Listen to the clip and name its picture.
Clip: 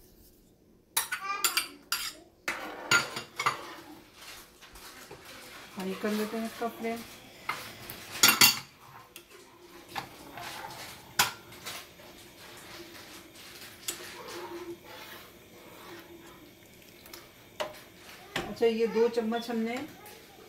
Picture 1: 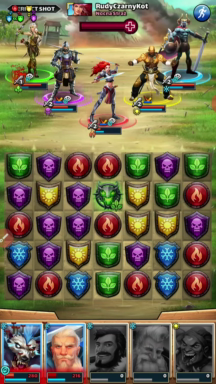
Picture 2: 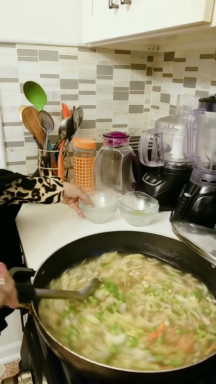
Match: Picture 2